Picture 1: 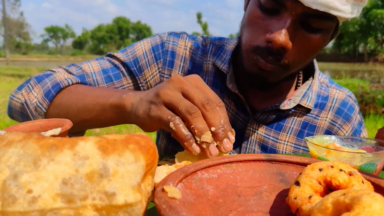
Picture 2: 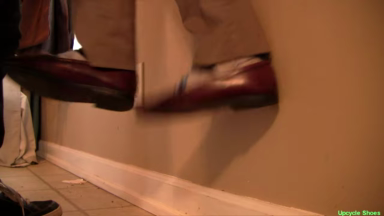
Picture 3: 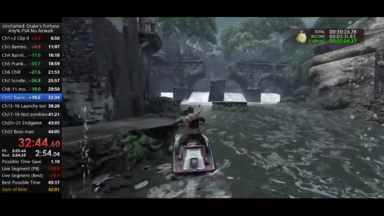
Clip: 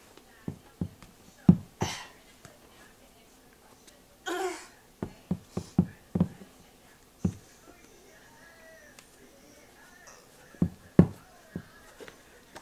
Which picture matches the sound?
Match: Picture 2